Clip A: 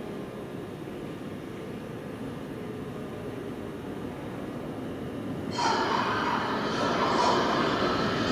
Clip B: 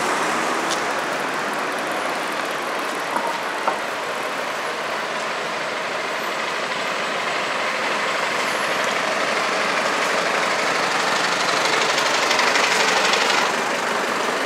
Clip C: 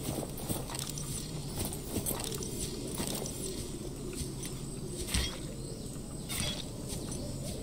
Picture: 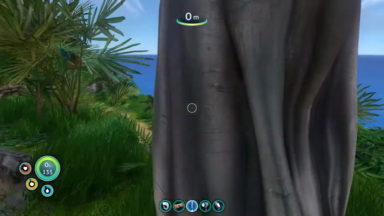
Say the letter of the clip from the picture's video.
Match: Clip C